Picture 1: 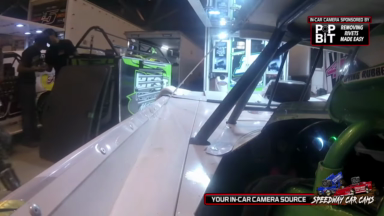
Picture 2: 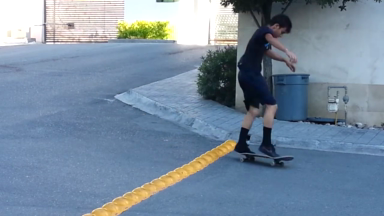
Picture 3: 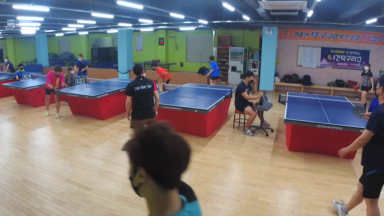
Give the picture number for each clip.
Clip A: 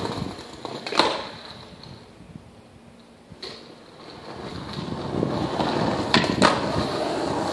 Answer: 2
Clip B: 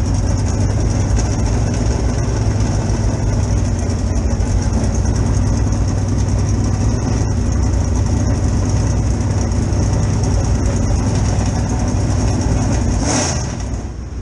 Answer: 1